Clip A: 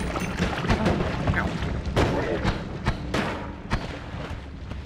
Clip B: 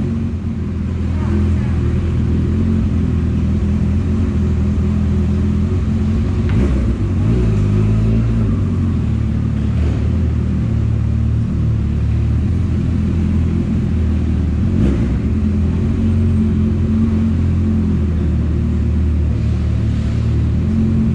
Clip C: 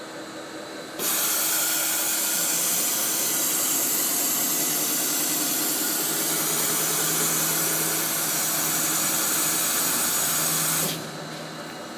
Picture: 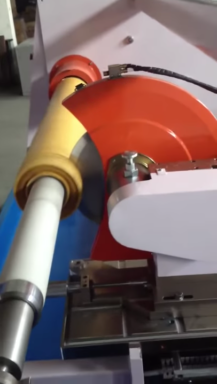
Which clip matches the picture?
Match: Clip C